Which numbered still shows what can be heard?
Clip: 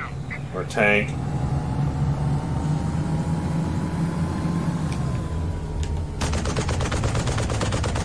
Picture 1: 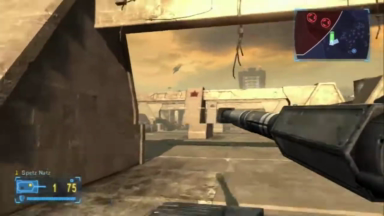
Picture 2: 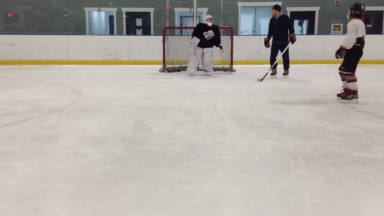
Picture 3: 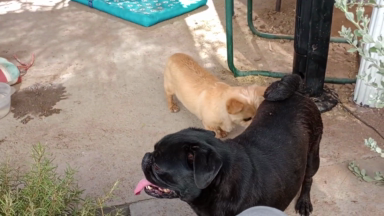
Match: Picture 1